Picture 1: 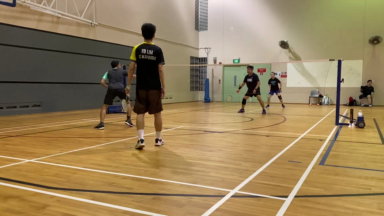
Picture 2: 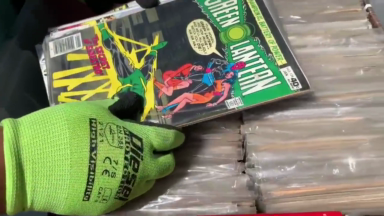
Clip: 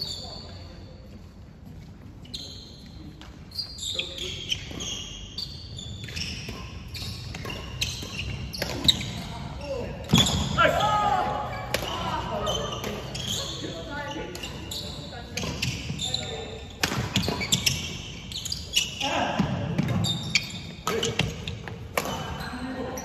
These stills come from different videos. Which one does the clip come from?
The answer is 1